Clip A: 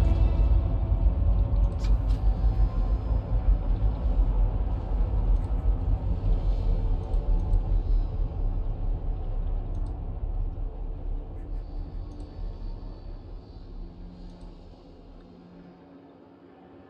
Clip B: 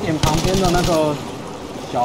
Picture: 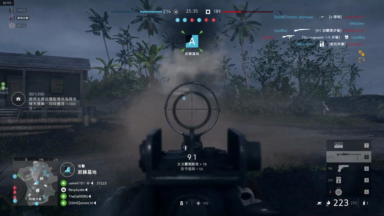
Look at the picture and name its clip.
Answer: B